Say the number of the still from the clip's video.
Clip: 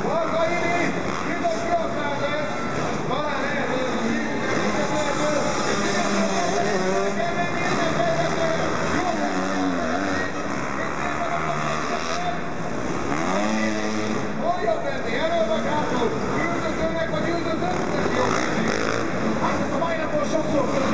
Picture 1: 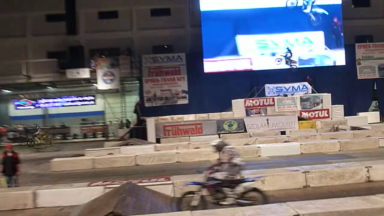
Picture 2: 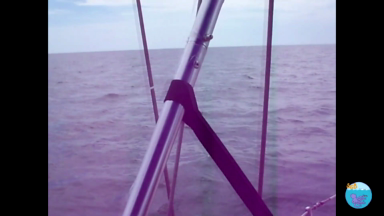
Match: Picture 1